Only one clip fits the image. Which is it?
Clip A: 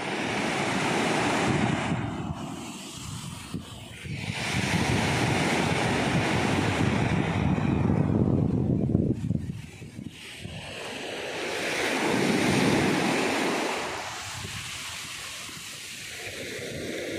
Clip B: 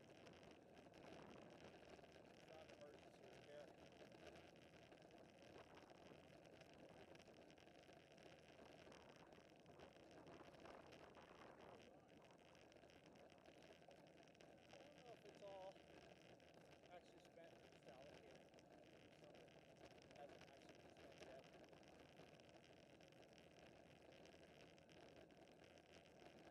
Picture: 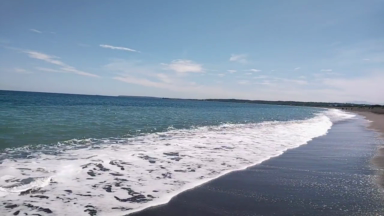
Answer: A